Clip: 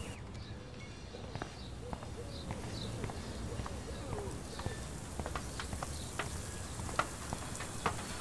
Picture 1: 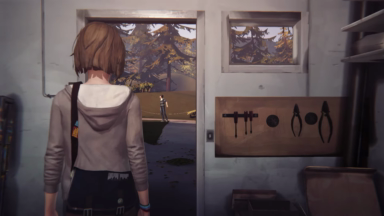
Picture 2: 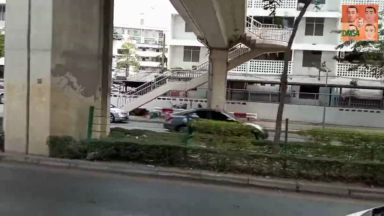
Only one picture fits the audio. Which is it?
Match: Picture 1